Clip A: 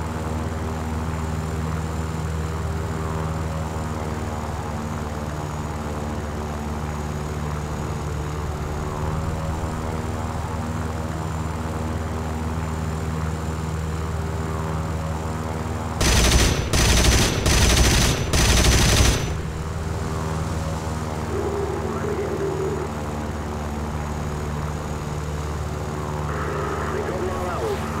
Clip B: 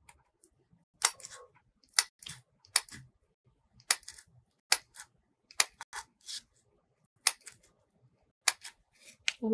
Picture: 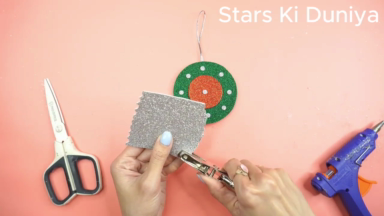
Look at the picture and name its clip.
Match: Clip B